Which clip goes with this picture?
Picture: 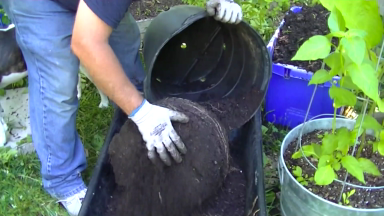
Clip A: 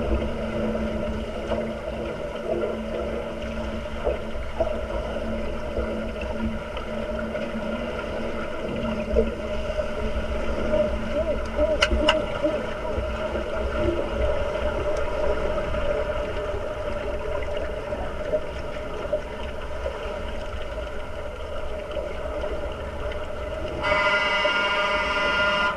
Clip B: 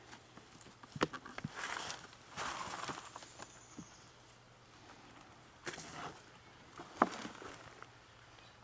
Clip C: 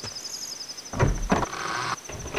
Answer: B